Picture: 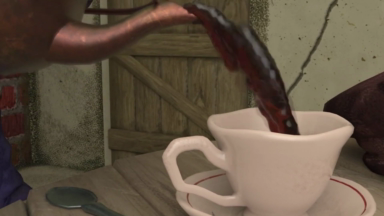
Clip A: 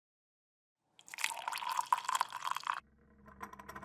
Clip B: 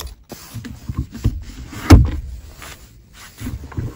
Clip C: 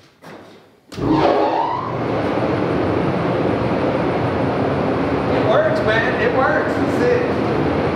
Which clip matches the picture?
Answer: A